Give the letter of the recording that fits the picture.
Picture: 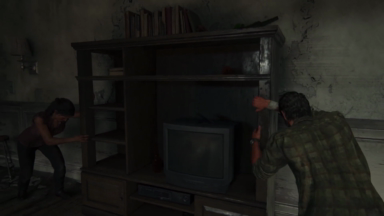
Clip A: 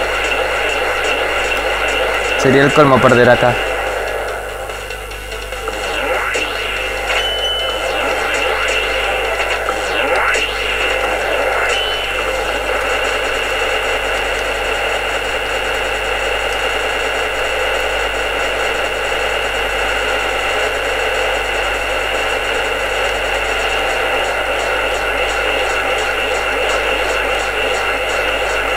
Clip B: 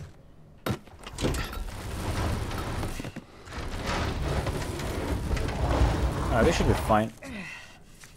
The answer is B